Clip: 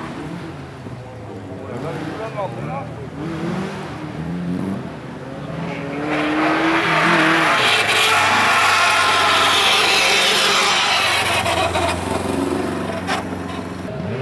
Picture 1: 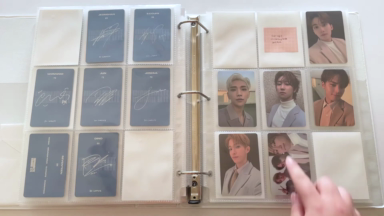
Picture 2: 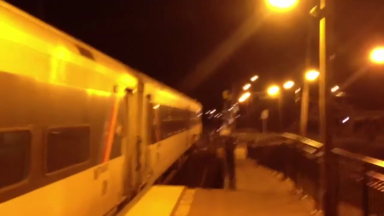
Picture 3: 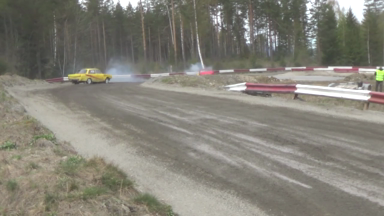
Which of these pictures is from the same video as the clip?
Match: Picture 3